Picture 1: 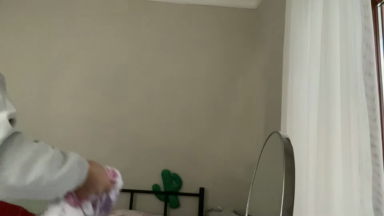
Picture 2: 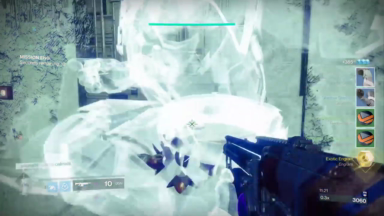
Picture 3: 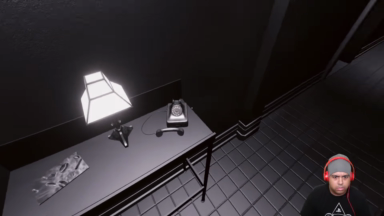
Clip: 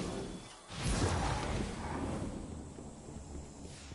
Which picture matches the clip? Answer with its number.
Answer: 2